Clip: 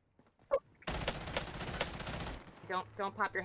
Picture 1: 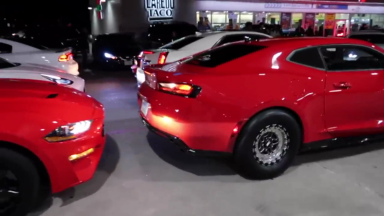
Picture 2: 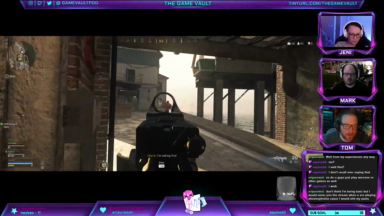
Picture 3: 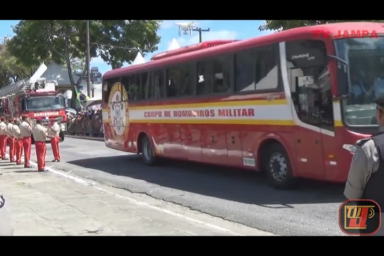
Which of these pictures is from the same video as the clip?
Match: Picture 2